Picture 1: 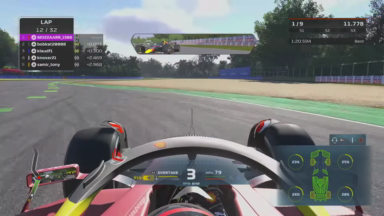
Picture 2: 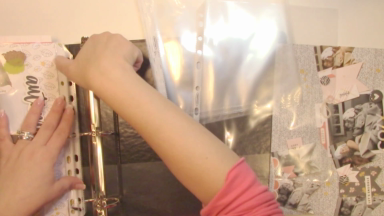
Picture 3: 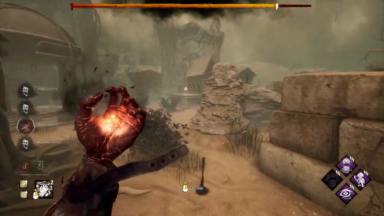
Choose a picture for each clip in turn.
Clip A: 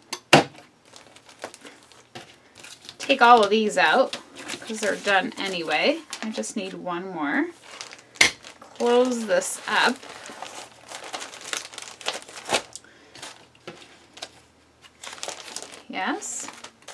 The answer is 2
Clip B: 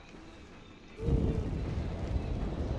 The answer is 3